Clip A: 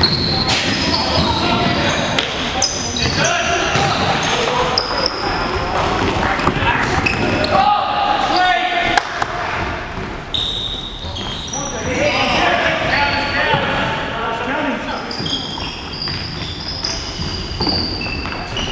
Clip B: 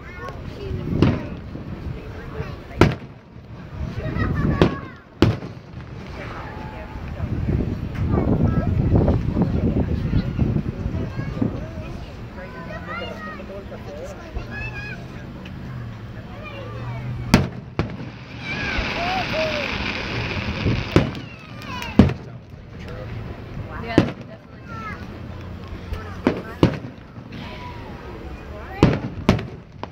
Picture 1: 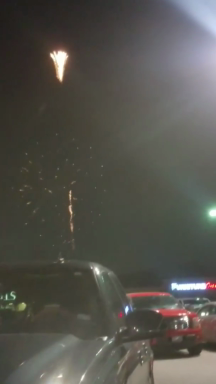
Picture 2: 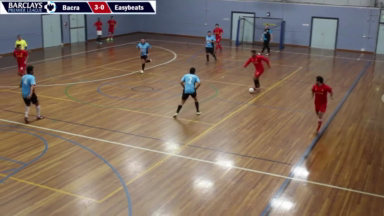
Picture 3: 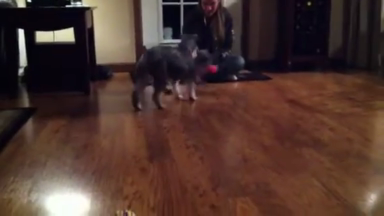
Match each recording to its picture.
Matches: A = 2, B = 1